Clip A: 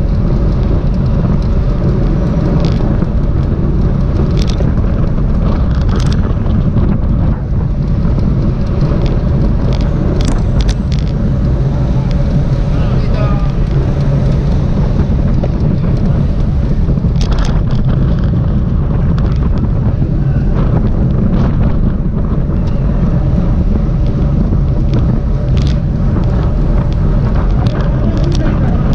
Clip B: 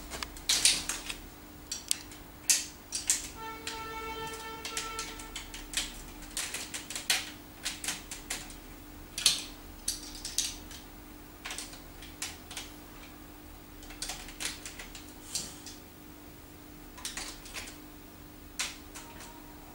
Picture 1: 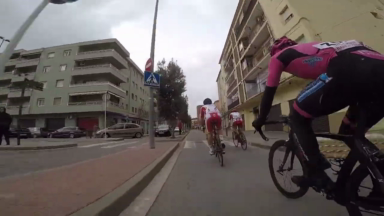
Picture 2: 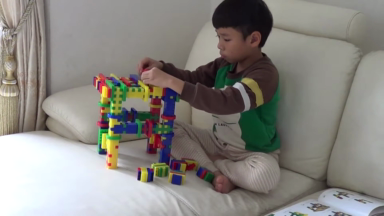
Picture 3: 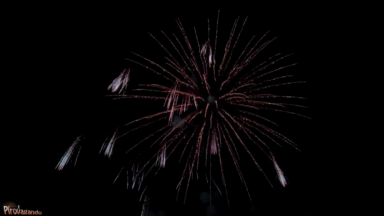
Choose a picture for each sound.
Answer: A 1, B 2